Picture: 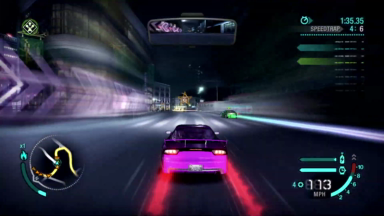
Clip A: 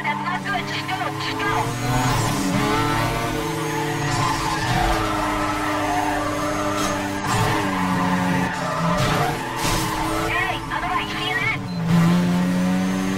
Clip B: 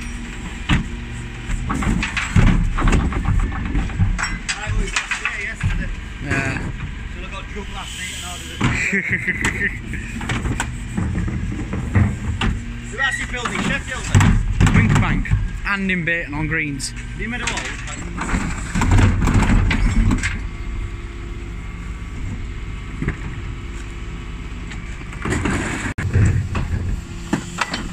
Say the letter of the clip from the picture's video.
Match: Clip A